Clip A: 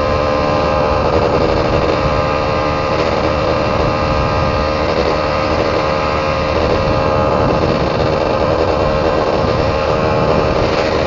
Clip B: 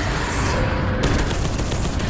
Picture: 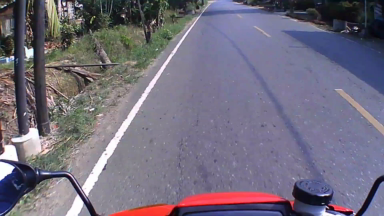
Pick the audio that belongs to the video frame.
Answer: A